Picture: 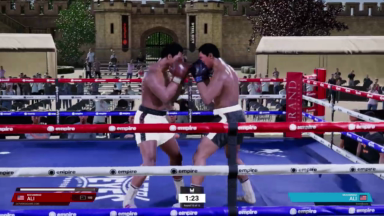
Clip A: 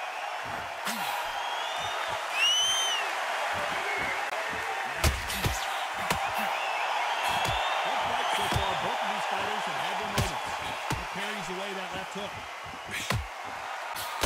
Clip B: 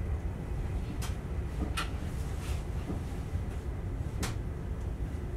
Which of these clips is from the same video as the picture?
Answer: A